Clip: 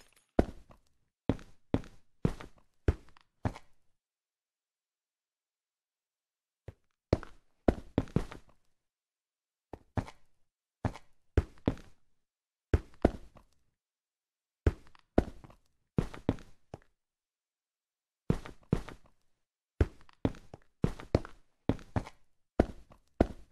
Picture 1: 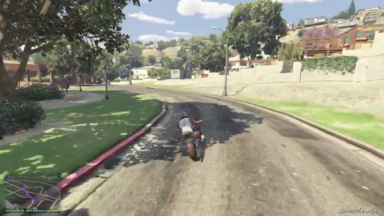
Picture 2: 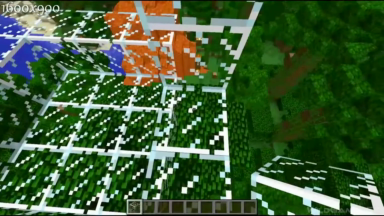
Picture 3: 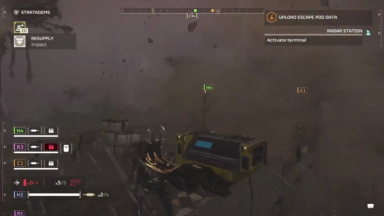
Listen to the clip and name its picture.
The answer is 2